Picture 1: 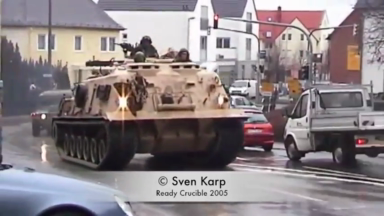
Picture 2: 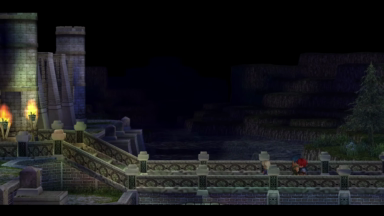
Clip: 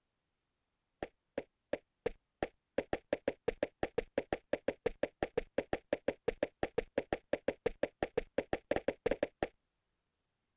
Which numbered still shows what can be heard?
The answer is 2